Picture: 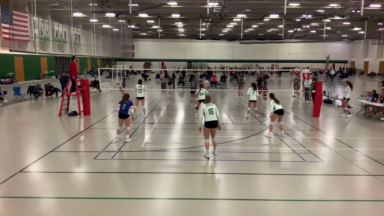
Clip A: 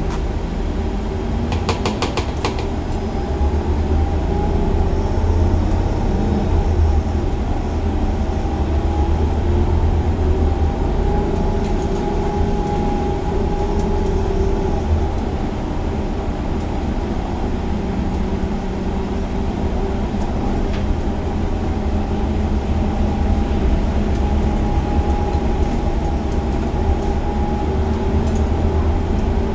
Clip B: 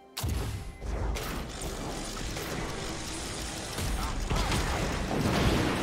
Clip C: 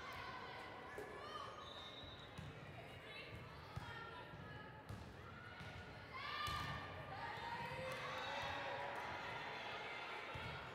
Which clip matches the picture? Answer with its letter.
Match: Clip C